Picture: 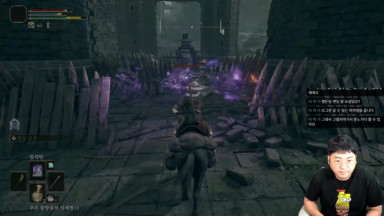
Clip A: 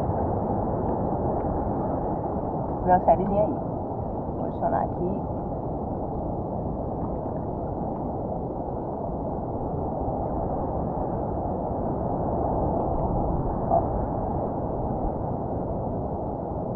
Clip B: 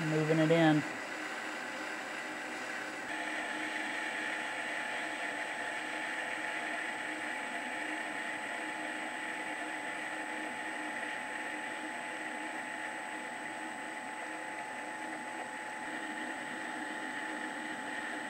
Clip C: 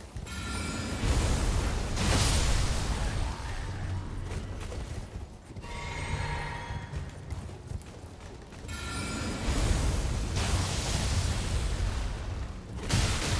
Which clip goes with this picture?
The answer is C